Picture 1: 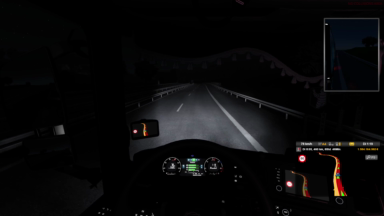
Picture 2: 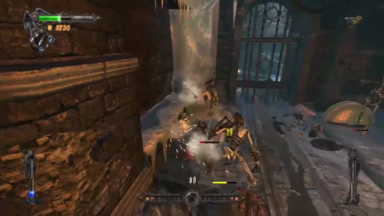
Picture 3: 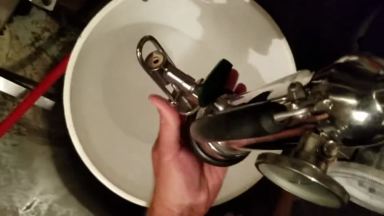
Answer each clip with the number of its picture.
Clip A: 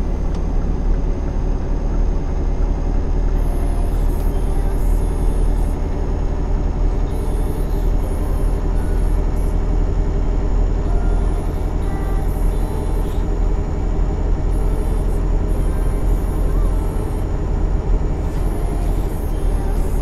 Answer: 1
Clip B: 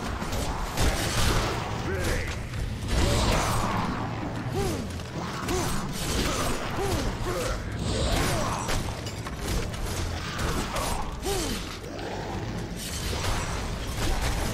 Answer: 2